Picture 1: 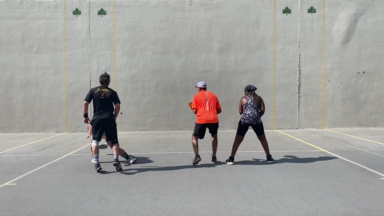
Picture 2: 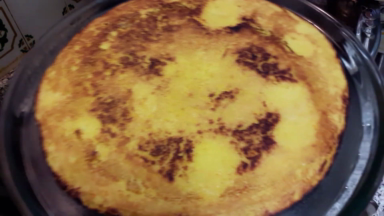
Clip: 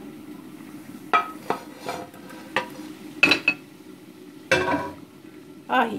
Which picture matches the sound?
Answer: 2